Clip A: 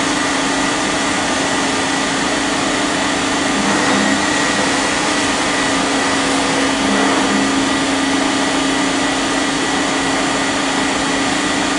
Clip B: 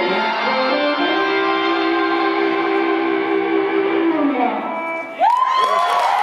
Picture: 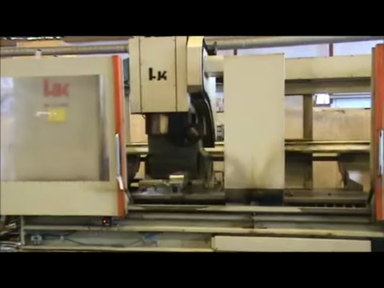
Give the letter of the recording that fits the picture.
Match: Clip A